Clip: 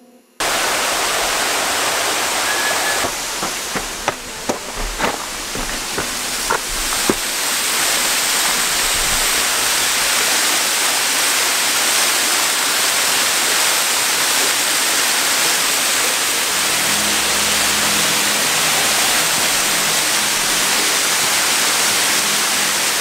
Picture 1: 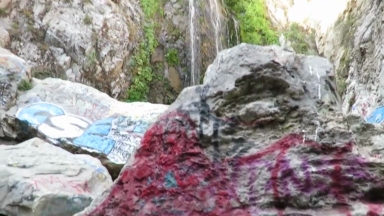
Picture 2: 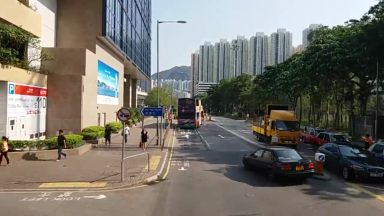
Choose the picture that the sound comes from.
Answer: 1